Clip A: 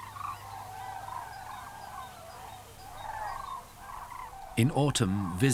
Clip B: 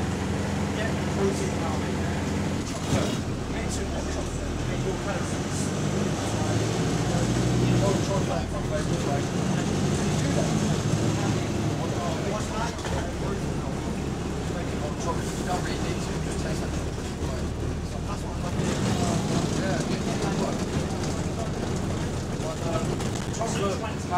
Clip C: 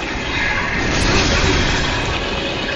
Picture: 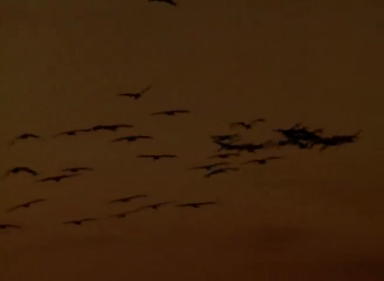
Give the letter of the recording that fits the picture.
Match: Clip A